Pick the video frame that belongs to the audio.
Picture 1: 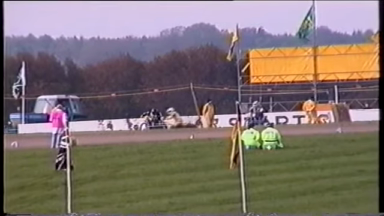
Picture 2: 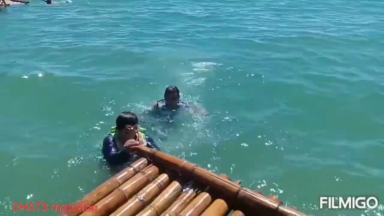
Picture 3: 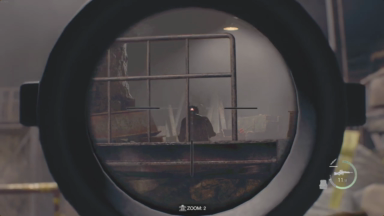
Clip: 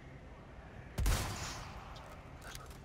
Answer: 3